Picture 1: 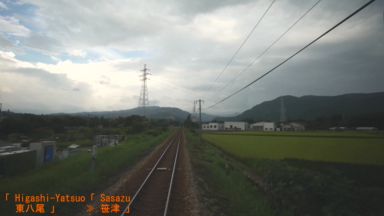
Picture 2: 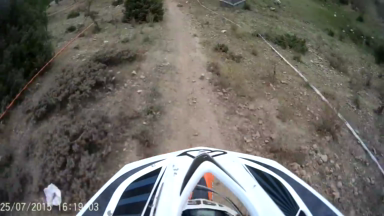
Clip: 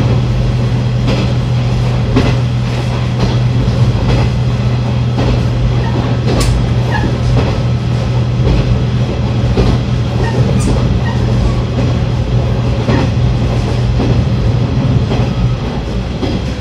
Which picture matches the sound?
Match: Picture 1